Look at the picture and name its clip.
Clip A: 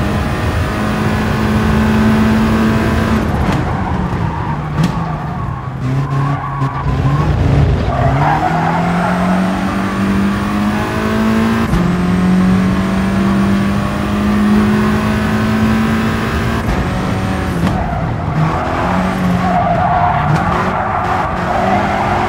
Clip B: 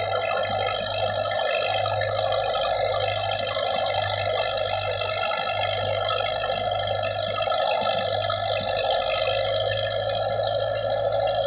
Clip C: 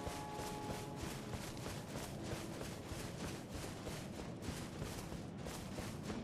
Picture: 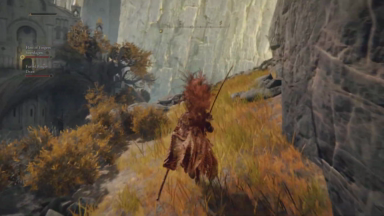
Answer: C